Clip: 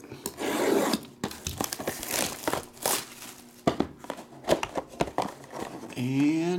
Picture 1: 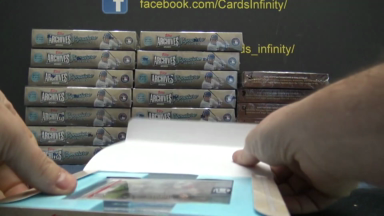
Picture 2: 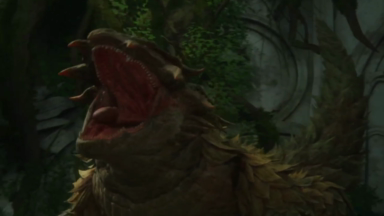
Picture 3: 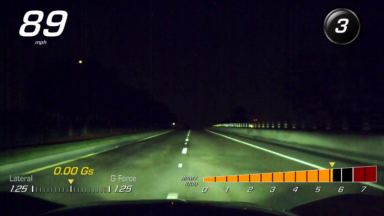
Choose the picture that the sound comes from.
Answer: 1